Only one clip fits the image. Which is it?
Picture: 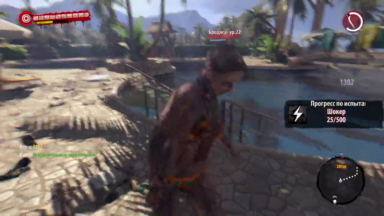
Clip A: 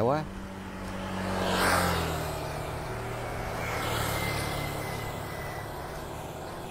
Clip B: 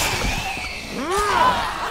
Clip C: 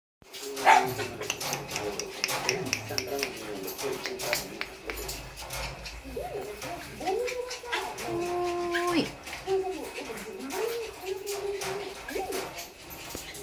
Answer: B